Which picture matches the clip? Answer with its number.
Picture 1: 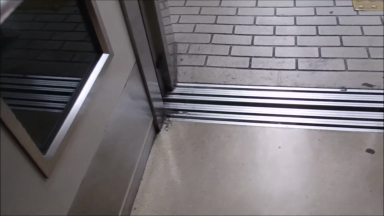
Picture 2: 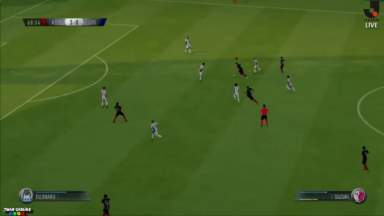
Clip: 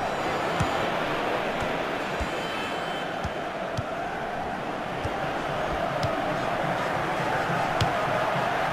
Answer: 2